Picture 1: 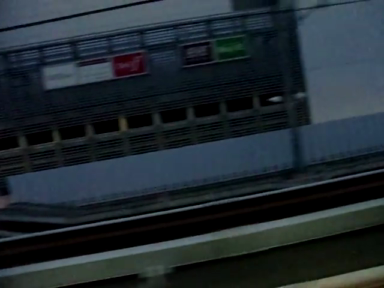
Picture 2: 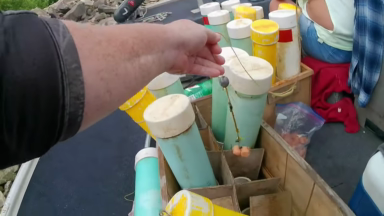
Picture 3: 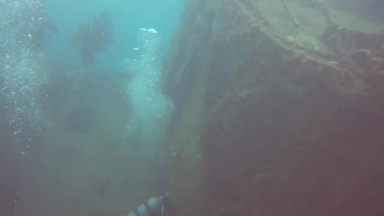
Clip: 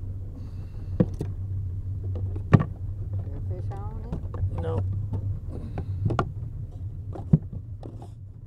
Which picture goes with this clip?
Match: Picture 2